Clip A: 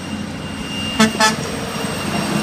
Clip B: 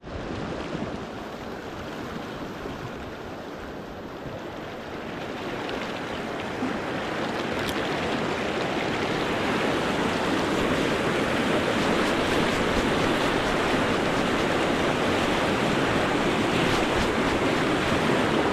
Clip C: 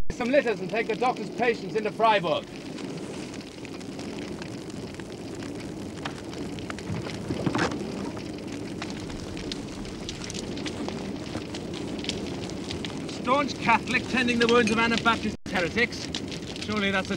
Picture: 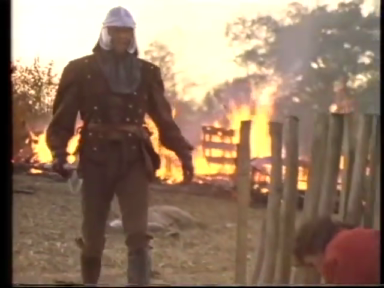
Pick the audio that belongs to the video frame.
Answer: C